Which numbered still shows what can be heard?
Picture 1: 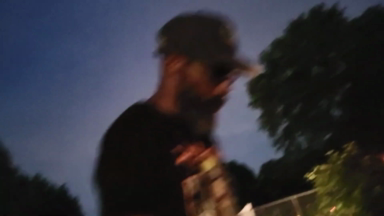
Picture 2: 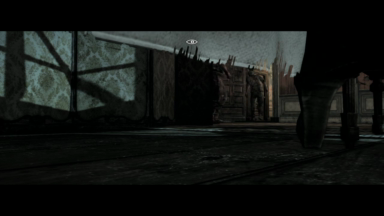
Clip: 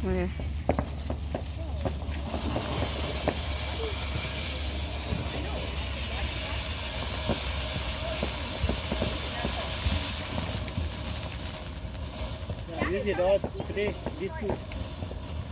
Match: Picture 1